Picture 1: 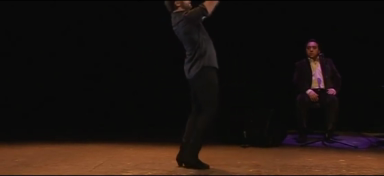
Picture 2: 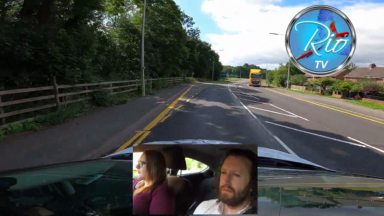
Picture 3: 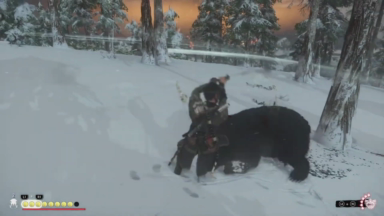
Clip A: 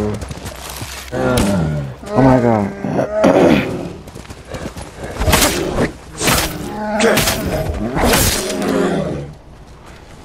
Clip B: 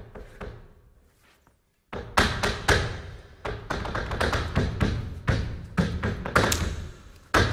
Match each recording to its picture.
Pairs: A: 3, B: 1